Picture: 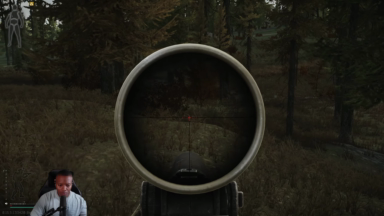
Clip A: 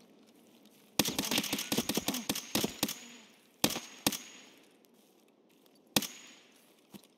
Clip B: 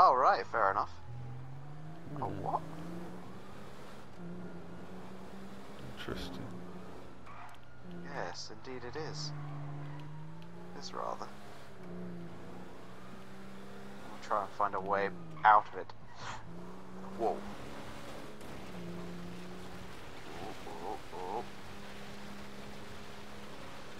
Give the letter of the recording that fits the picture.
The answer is A